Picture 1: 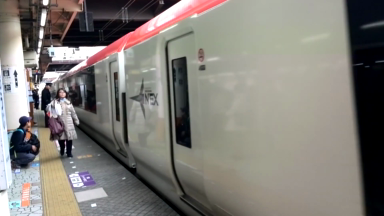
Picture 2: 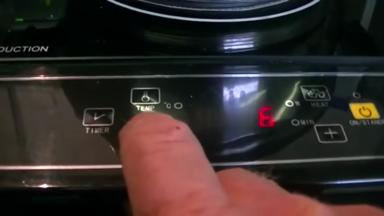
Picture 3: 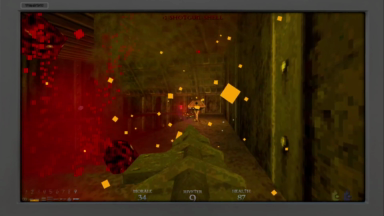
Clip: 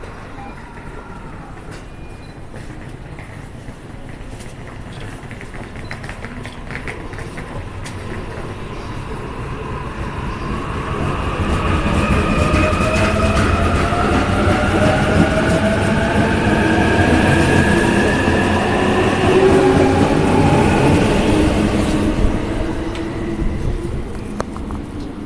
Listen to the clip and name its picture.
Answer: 1